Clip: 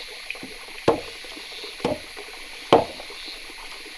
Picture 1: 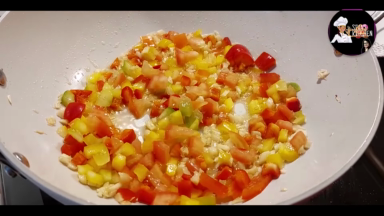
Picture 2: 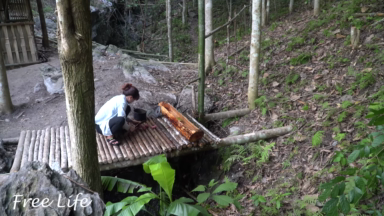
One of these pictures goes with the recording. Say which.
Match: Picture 2